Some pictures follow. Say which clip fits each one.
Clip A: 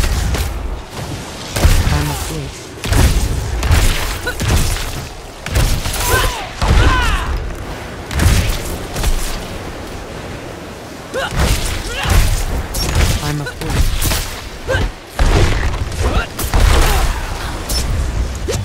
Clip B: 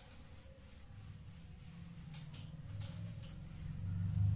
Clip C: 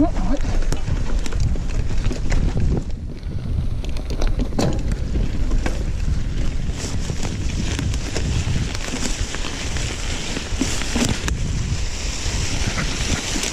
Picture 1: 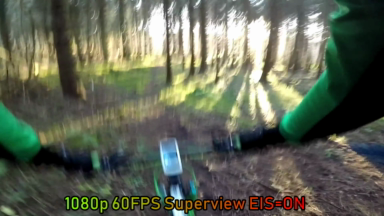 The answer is C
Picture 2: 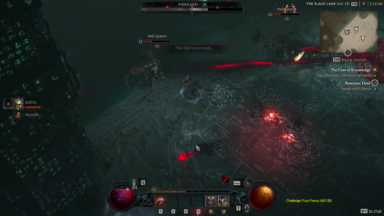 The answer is A